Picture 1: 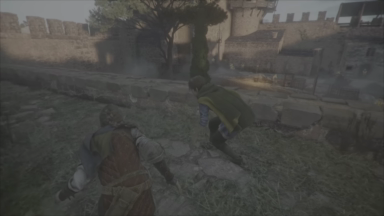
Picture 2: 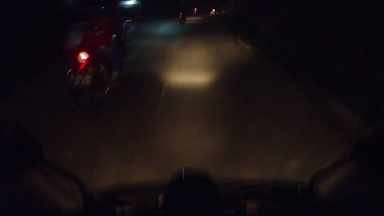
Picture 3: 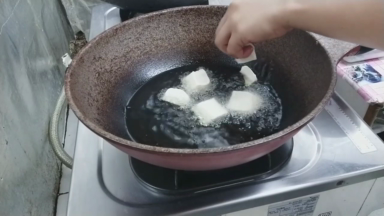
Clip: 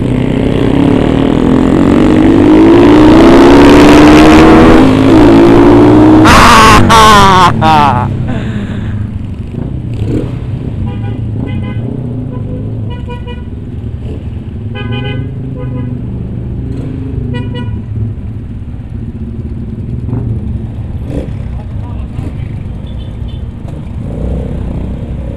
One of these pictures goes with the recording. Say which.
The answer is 2